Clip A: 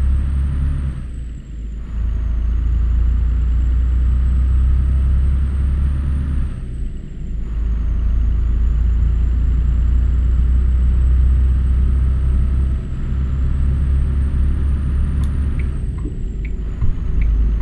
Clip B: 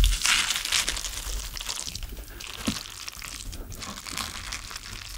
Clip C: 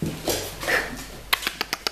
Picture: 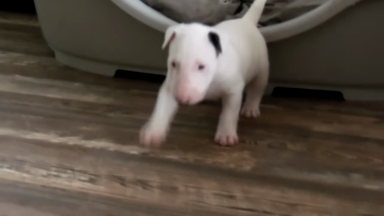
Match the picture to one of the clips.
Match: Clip C